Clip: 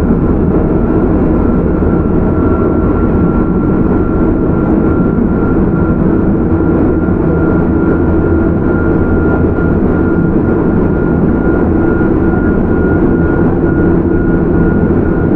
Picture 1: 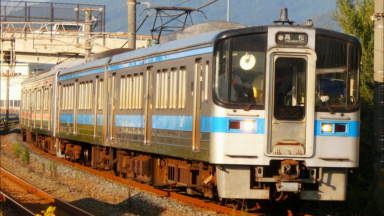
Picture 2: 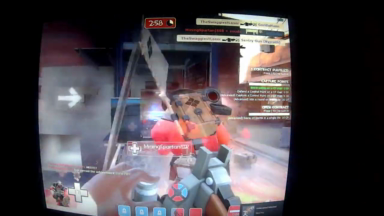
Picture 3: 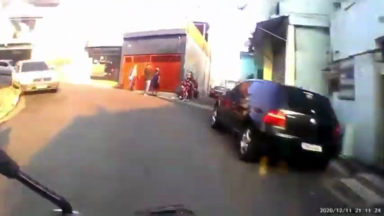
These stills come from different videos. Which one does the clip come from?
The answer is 1